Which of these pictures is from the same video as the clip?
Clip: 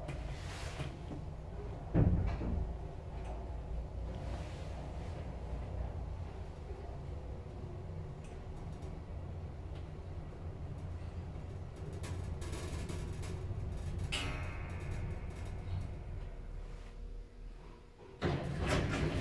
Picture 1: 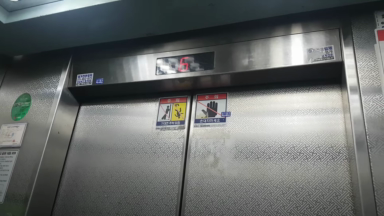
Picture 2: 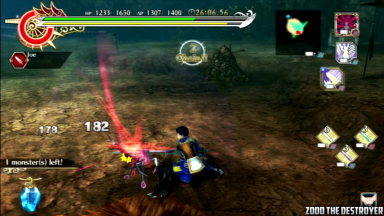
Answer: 1